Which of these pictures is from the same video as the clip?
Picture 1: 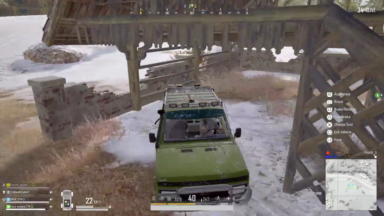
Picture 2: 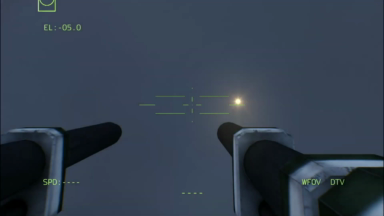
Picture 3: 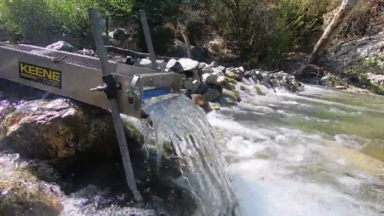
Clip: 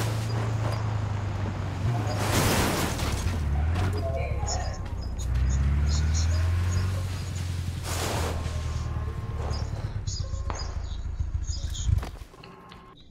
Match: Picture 1